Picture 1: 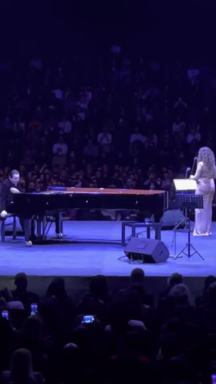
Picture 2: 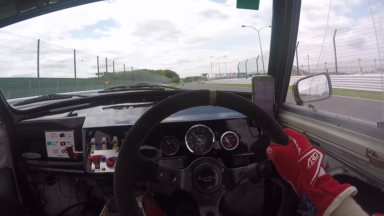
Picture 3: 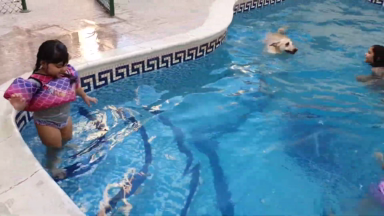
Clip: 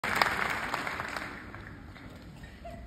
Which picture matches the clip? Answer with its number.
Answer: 1